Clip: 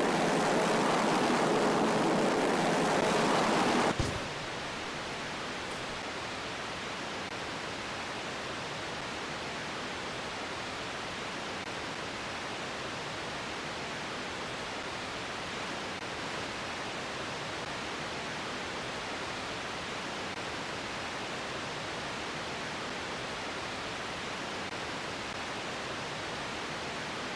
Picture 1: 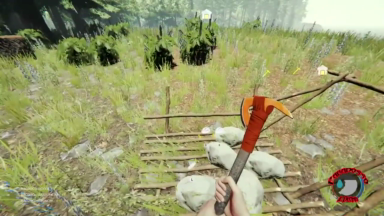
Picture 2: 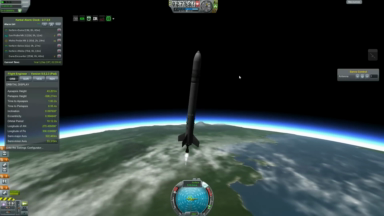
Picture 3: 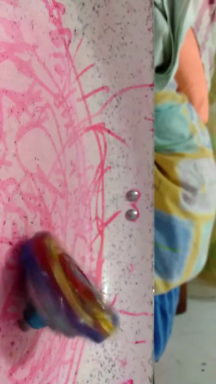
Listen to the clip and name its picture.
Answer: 2